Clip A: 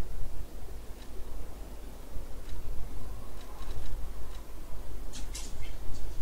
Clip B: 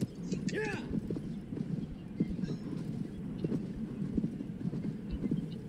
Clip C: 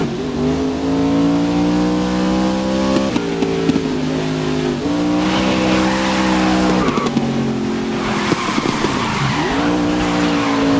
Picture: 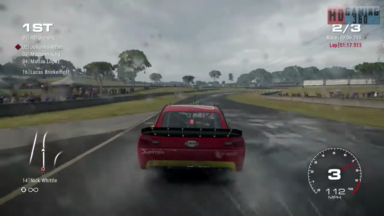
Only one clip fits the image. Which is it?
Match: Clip C